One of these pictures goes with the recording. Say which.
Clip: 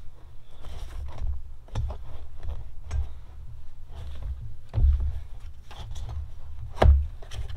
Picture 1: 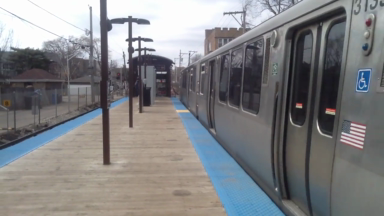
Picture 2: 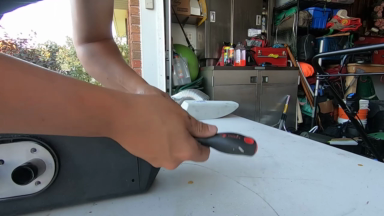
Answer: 2